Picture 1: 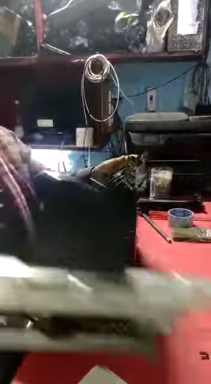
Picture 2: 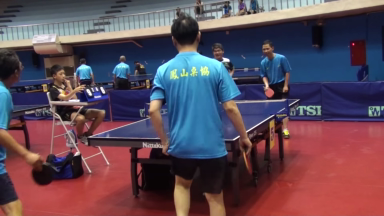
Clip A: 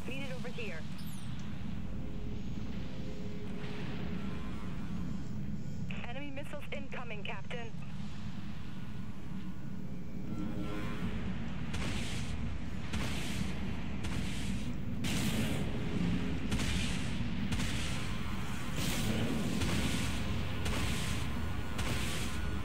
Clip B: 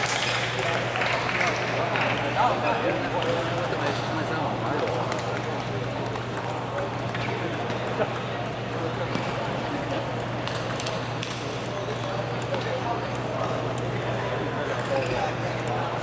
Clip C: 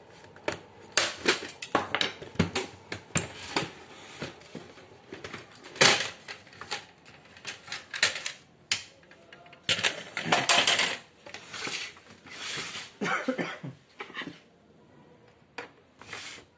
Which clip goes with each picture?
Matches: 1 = C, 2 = B